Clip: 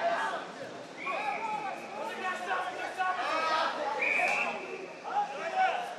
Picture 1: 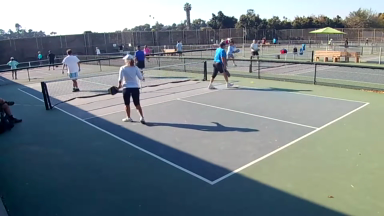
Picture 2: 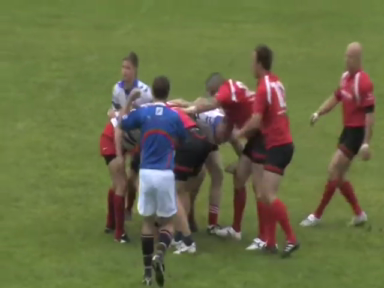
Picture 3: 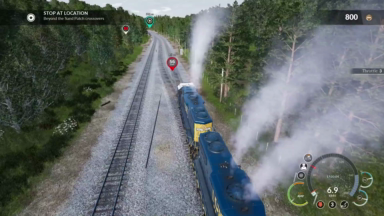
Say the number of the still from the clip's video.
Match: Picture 2